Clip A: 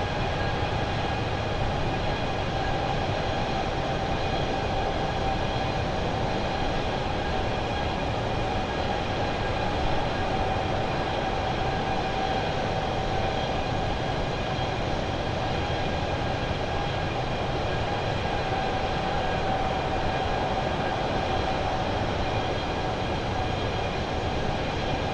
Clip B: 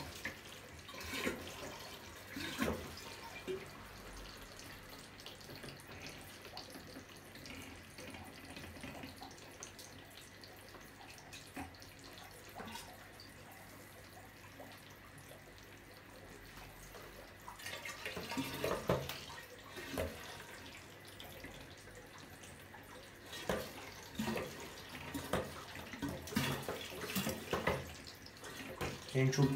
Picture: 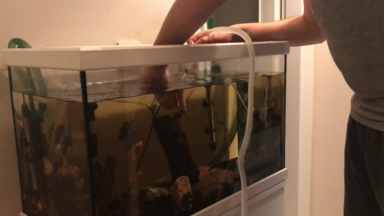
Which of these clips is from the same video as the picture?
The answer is B